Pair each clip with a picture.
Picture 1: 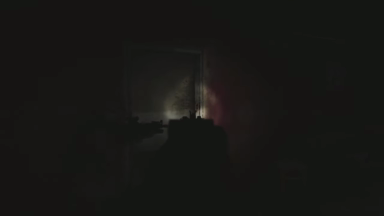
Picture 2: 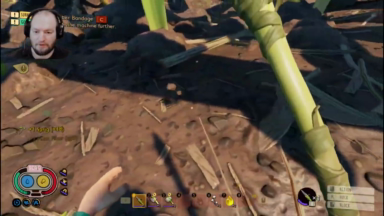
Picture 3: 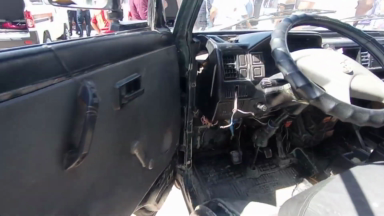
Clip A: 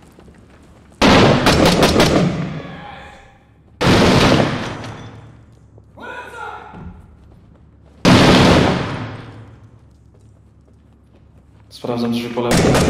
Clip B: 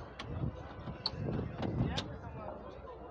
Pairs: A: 1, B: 3